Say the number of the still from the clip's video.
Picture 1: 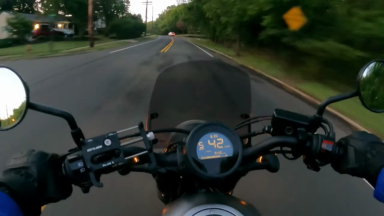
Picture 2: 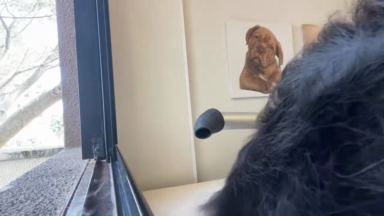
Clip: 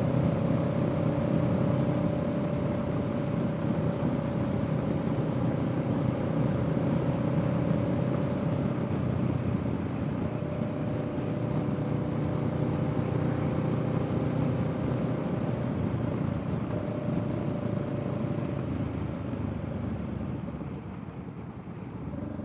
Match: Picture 1